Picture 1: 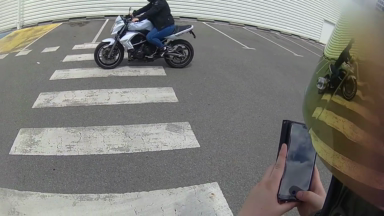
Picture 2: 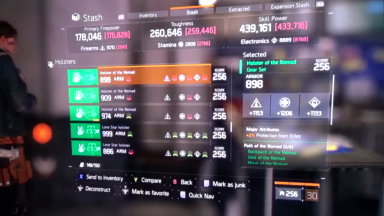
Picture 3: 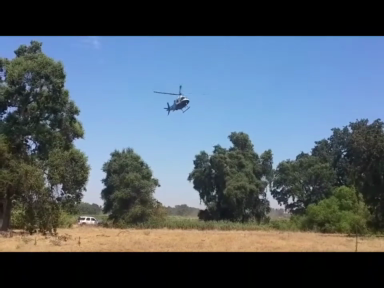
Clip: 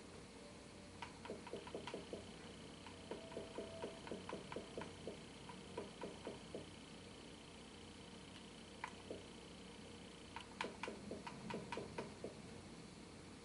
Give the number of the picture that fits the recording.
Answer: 2